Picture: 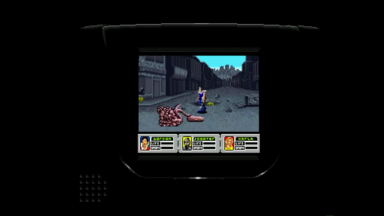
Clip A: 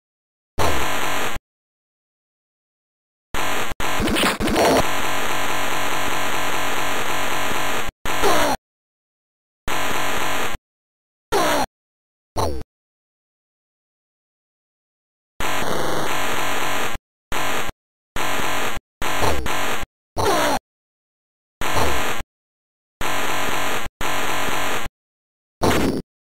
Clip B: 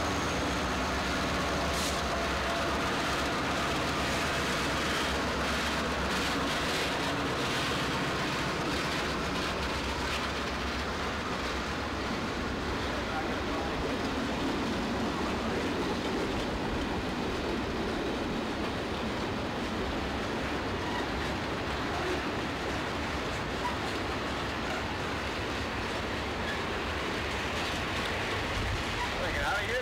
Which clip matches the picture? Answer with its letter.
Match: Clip A